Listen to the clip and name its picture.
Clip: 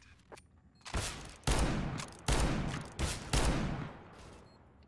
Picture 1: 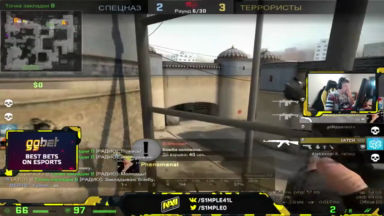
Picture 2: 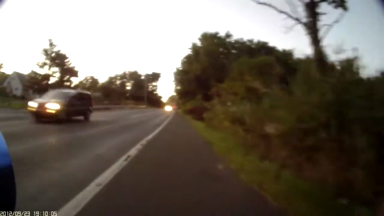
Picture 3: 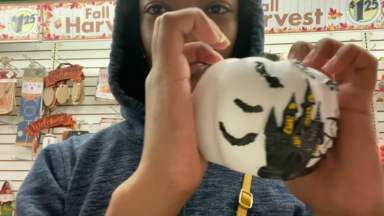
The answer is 1